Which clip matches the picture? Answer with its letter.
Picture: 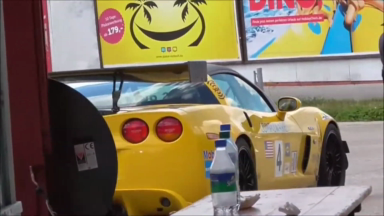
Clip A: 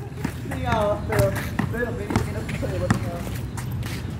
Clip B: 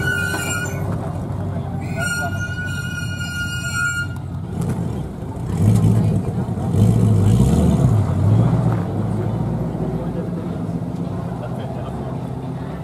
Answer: B